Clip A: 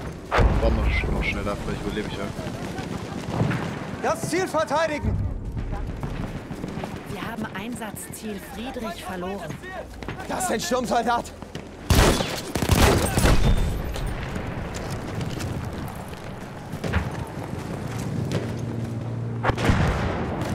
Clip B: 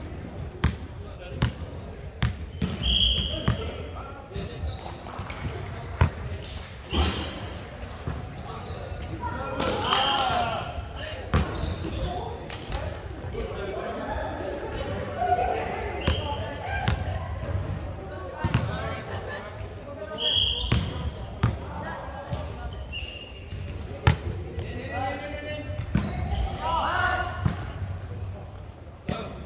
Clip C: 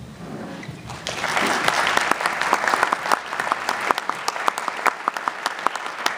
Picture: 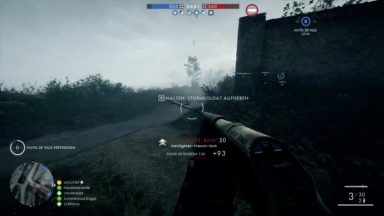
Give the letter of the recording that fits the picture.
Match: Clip A